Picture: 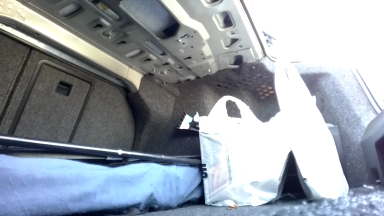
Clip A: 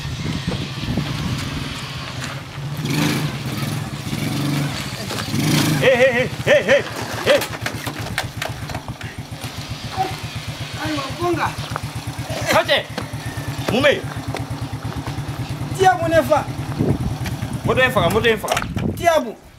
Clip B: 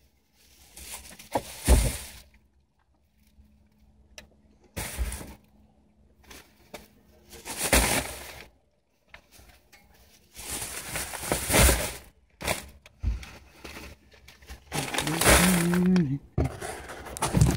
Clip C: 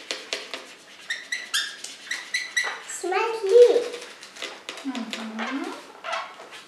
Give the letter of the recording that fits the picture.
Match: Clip B